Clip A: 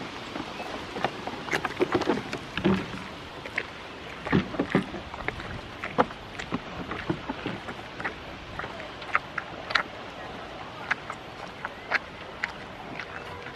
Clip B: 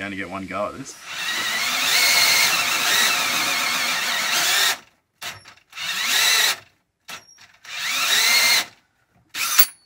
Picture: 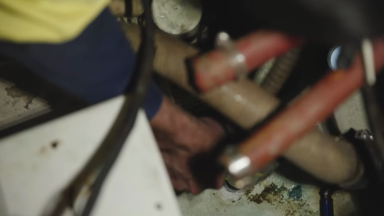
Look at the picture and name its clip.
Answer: B